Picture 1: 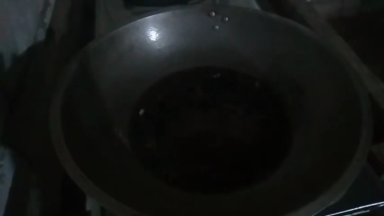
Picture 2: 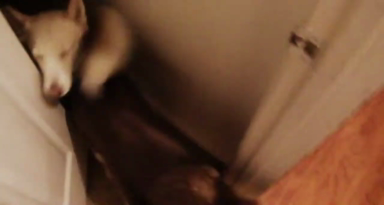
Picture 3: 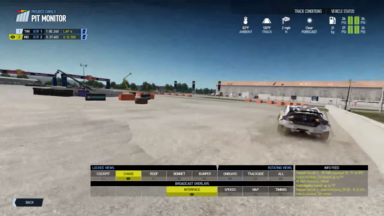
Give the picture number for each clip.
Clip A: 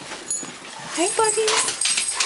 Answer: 2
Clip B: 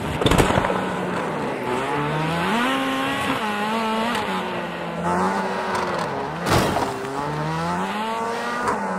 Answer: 3